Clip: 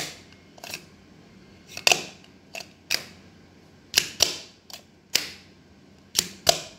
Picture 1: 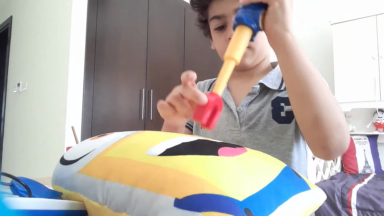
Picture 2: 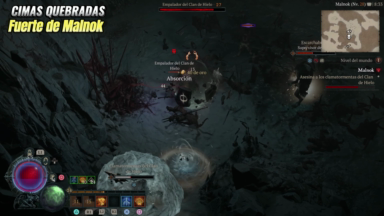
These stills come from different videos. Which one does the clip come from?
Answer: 1